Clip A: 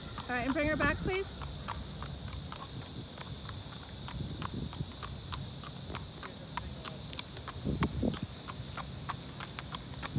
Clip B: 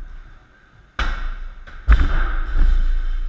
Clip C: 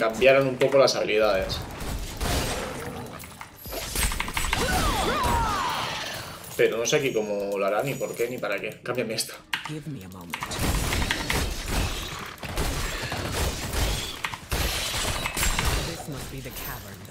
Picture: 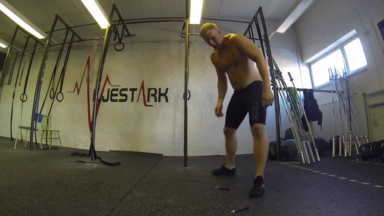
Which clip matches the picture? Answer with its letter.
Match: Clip B